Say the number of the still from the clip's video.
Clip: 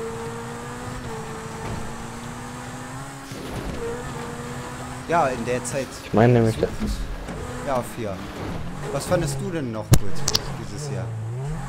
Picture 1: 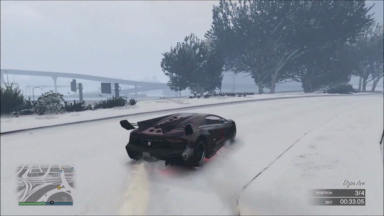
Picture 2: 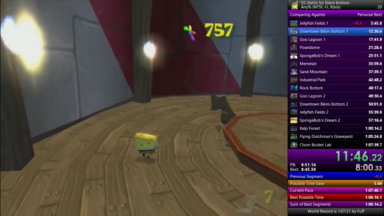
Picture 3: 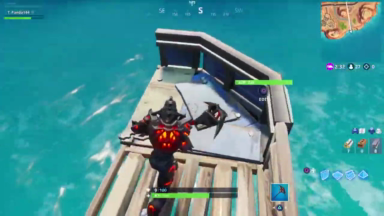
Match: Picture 1